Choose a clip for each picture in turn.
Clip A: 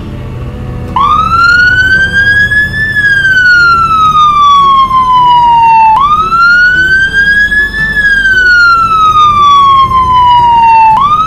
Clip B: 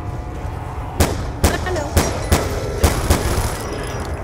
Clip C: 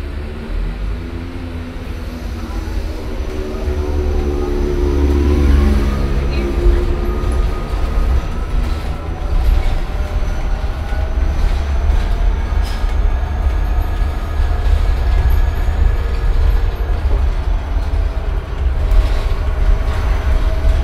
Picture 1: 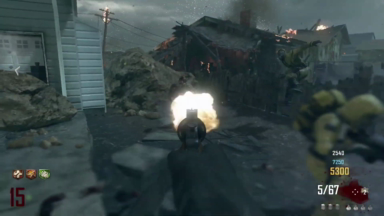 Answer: B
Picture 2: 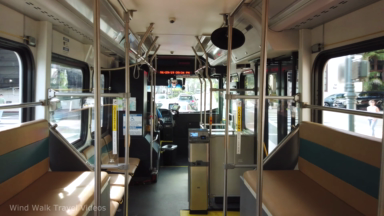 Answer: C